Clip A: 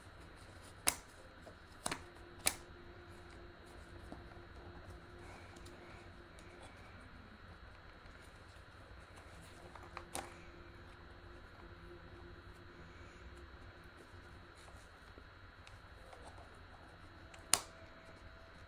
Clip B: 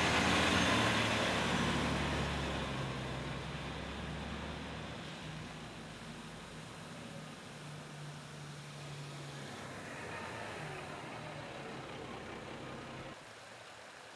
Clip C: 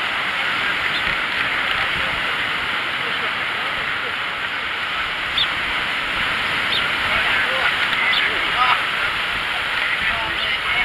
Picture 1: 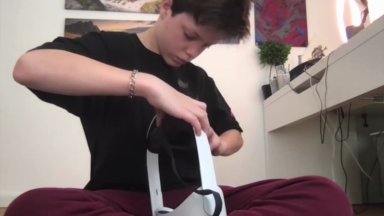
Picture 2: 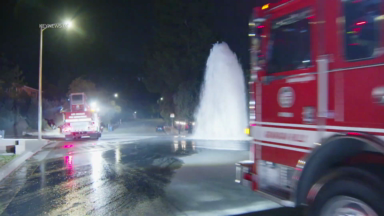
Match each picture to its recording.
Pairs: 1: A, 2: B